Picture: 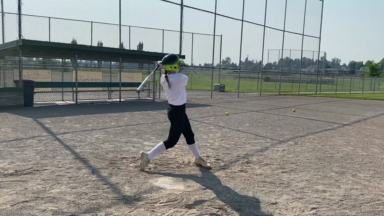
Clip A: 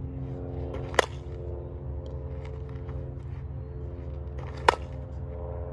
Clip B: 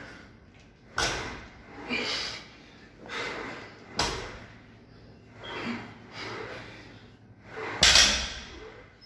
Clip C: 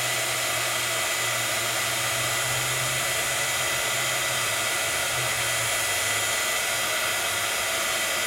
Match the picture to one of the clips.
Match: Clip A